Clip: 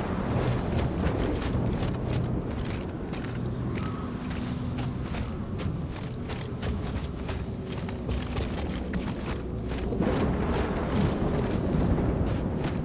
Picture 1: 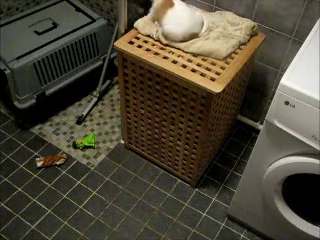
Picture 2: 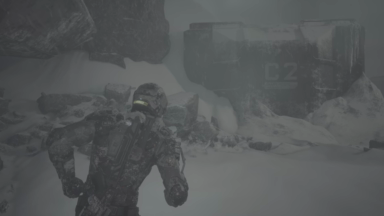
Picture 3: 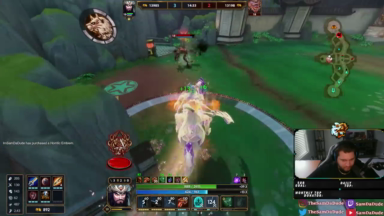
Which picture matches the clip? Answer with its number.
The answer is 2